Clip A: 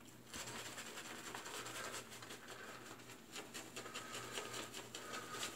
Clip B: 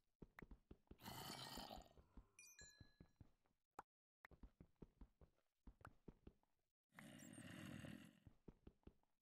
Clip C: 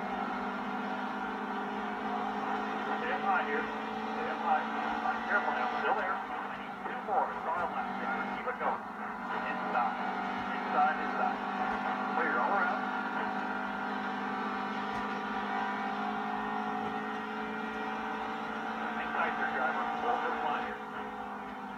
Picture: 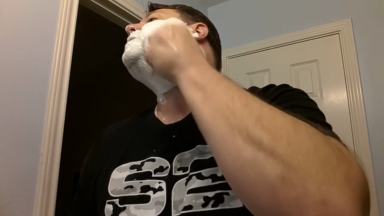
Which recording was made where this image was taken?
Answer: A